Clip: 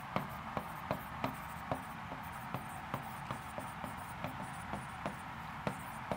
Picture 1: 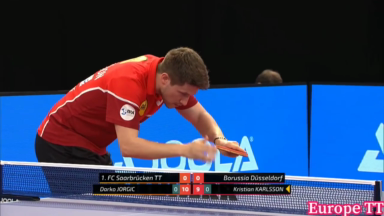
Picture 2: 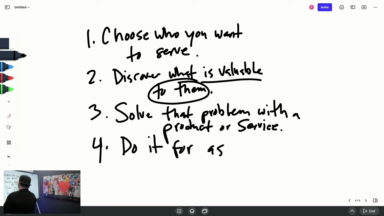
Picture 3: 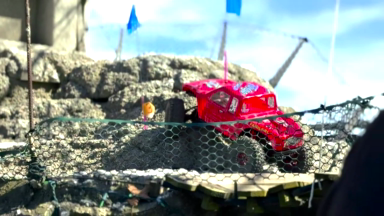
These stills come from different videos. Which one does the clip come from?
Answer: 2